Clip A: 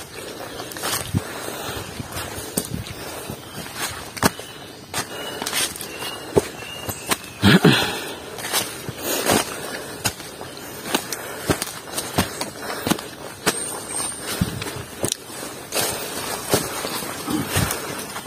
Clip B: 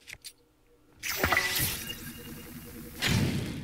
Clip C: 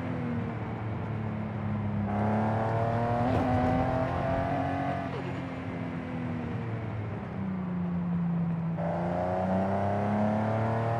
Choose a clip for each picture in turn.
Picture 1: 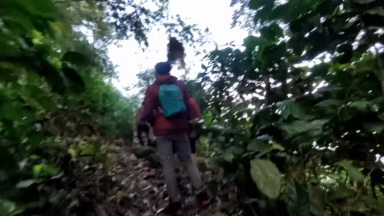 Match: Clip A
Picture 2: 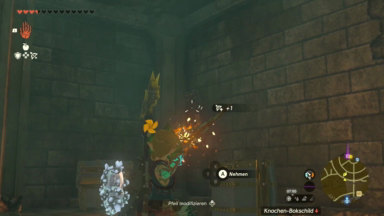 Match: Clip B